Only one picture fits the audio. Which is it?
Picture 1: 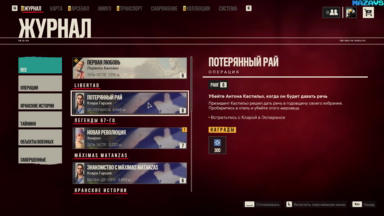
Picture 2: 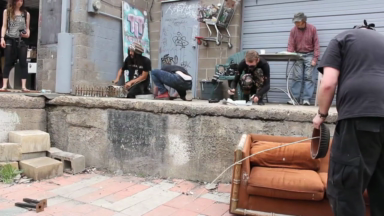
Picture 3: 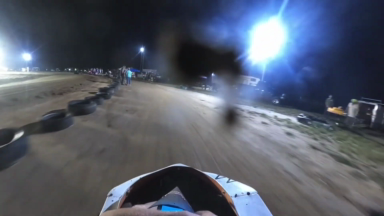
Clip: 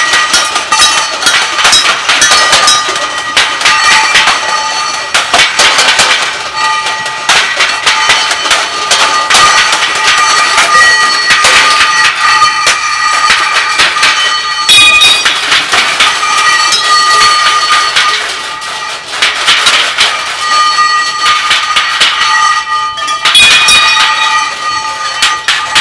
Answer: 2